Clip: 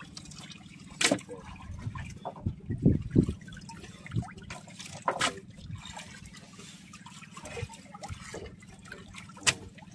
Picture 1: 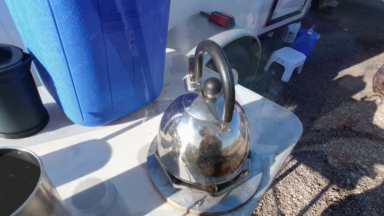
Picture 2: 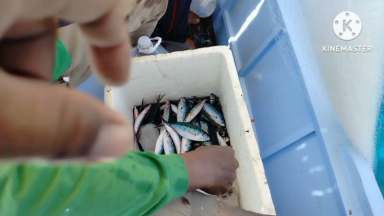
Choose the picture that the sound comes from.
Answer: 2